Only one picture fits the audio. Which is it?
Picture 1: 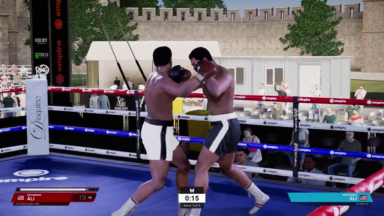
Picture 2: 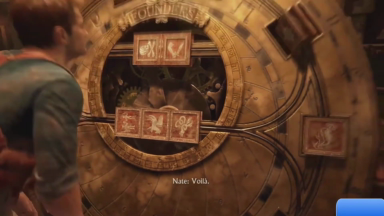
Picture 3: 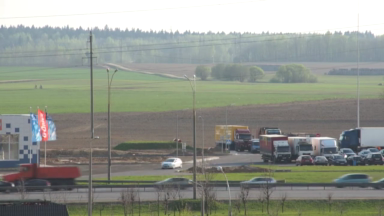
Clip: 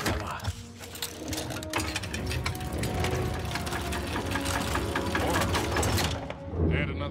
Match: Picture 2